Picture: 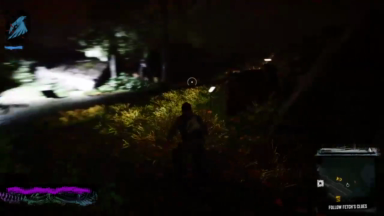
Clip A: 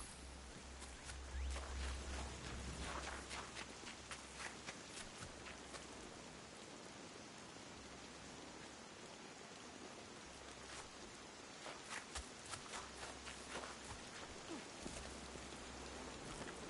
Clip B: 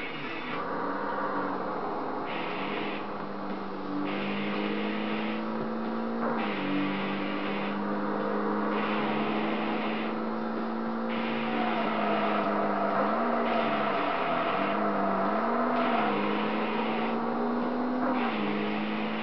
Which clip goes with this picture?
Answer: A